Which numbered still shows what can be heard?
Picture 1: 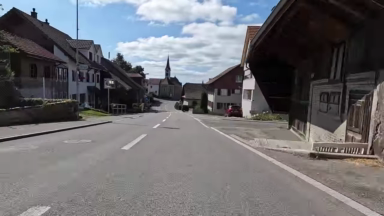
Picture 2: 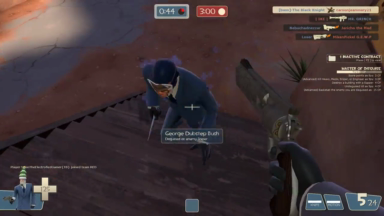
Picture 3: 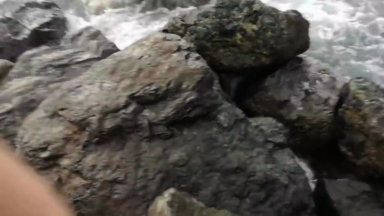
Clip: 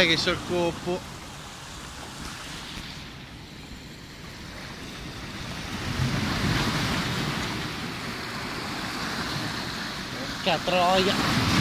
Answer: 3